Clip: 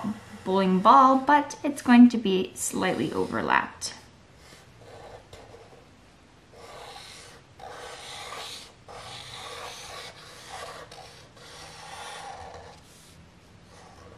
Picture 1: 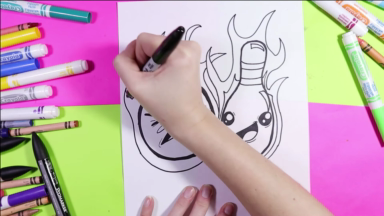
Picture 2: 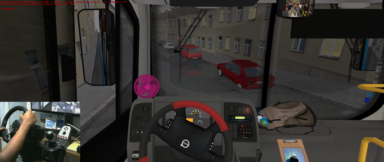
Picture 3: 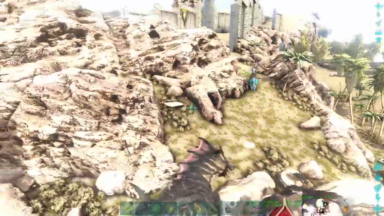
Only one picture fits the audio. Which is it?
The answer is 1